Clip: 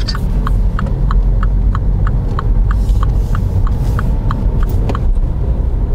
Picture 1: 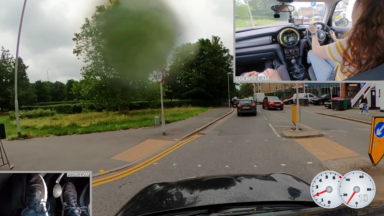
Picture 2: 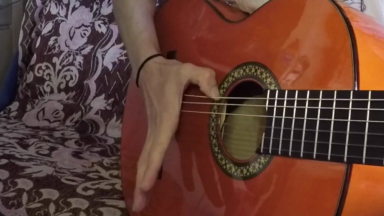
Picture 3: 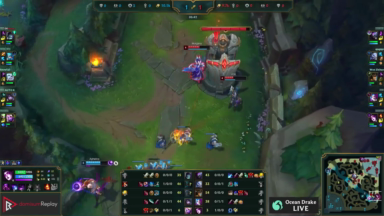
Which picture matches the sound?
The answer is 1